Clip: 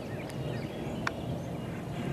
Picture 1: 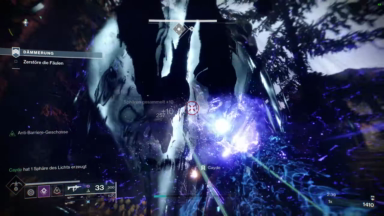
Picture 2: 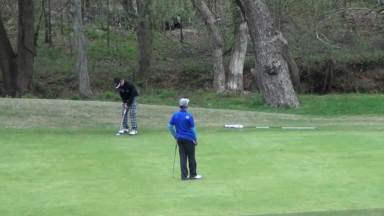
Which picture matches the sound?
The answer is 2